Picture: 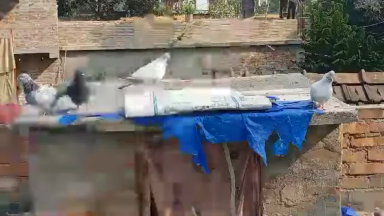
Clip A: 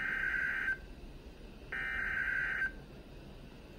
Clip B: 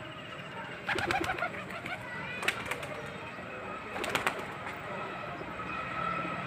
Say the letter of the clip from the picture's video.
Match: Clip B